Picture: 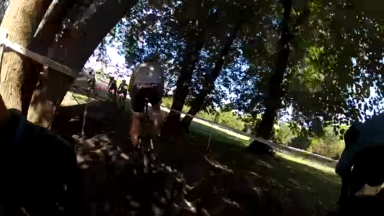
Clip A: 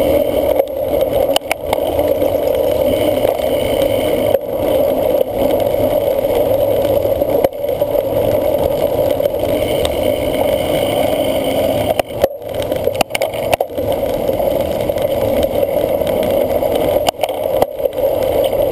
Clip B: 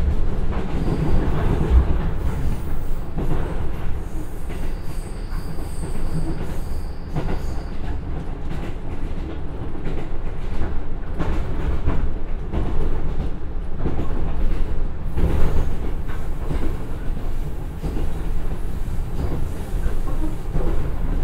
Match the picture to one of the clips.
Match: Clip A